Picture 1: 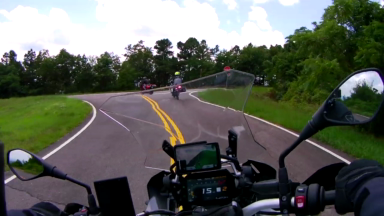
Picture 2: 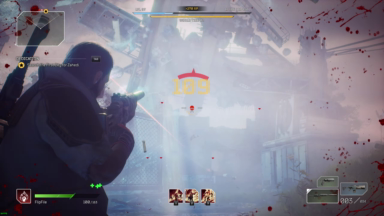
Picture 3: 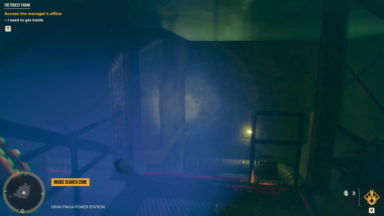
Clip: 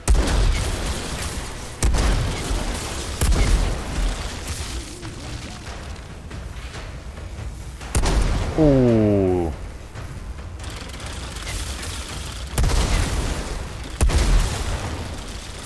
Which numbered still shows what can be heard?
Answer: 2